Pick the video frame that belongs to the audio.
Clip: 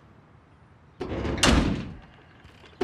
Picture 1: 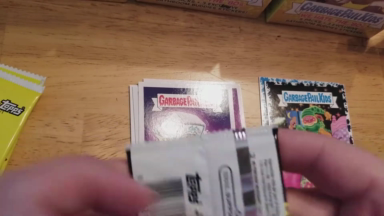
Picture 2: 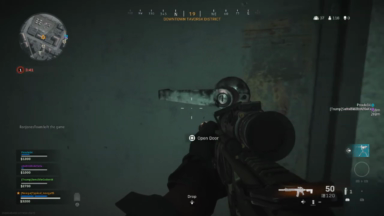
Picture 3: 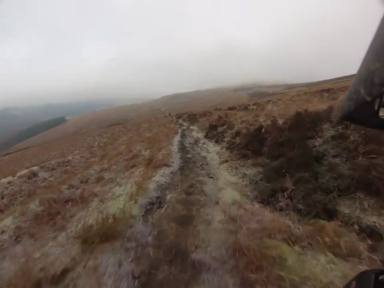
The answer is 2